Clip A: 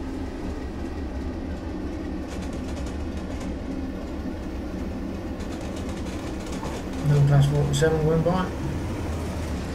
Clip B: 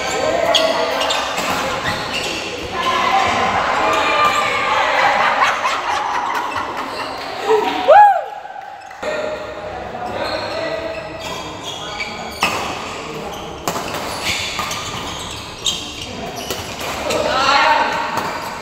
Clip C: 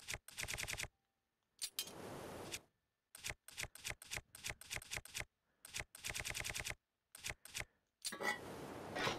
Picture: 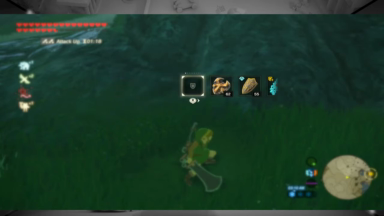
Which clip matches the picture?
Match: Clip C